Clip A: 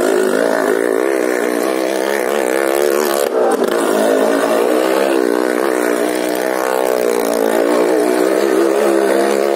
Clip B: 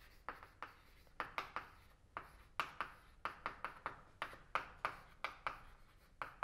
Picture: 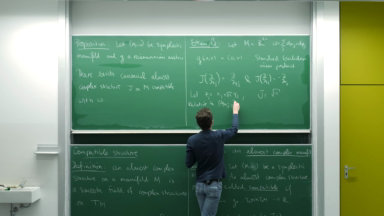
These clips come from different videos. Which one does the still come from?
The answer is B